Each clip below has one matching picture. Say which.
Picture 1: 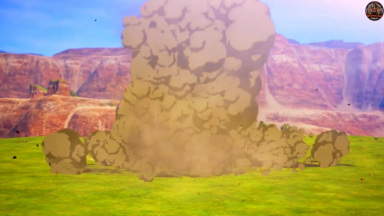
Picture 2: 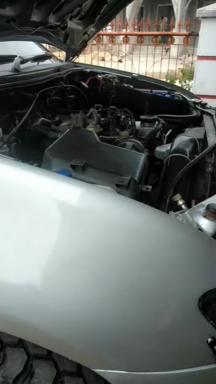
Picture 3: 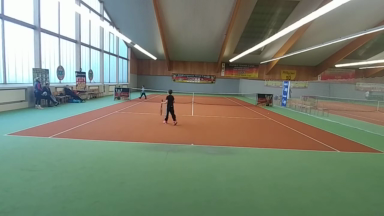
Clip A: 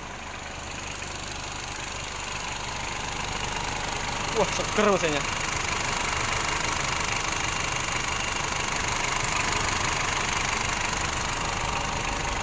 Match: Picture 2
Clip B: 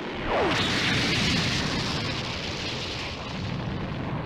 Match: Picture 1